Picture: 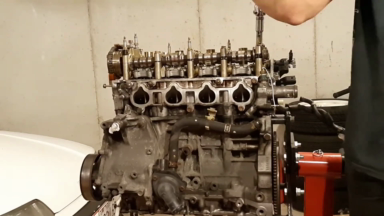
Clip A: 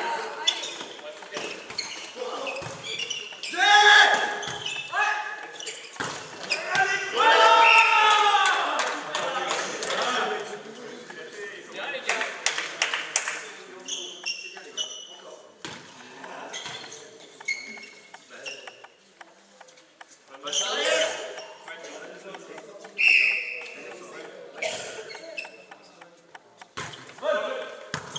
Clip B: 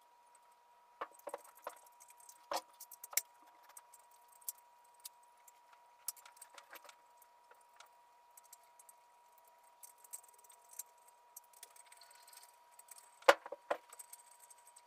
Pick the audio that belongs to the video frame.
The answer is B